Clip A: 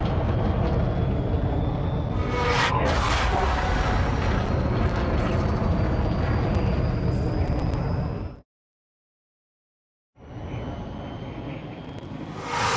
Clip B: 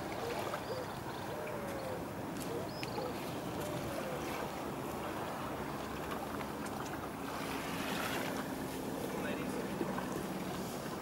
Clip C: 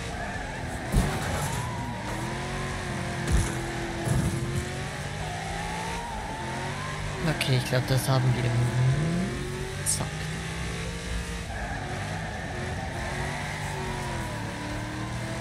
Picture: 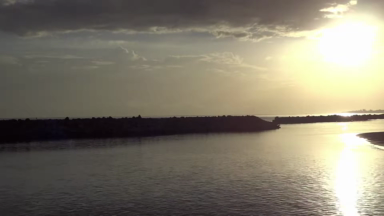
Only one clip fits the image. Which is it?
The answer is B